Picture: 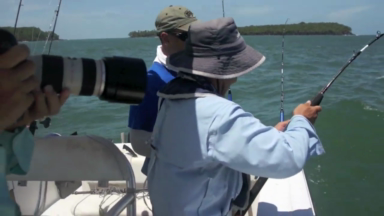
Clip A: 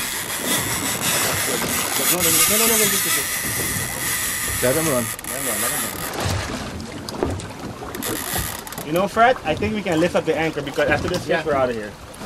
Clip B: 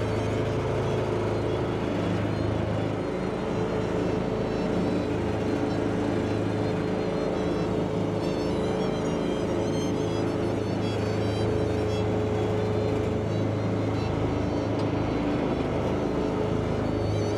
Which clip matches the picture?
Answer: A